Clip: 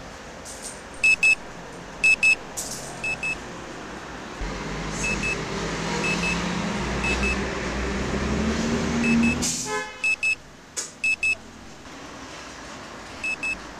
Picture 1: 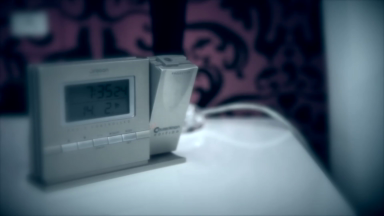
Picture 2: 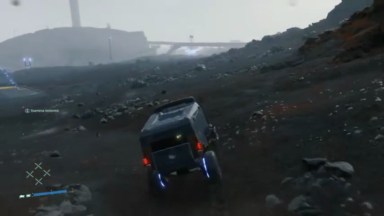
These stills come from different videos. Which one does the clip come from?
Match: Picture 1